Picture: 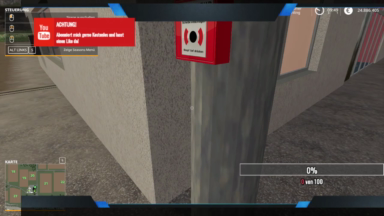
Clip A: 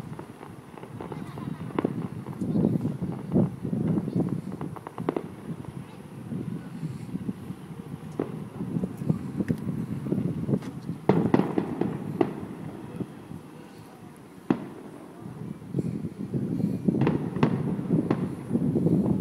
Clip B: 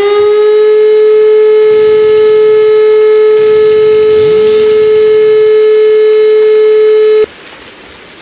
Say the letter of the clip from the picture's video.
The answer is B